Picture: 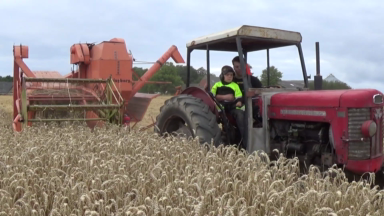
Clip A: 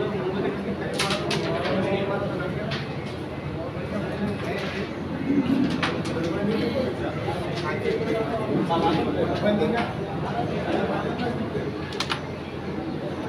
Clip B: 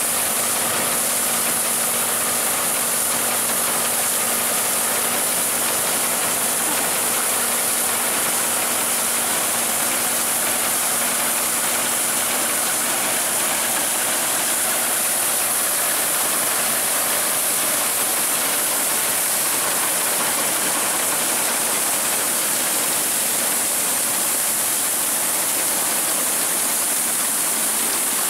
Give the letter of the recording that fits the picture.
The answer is B